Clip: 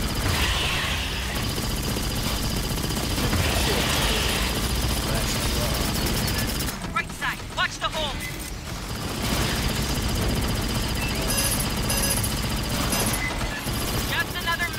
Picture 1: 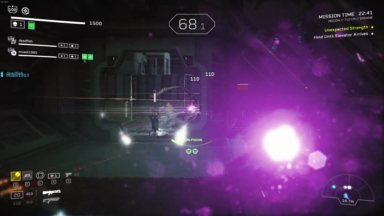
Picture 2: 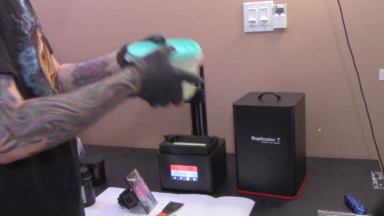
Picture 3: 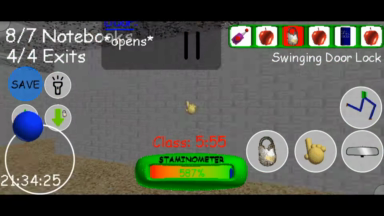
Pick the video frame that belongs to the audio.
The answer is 1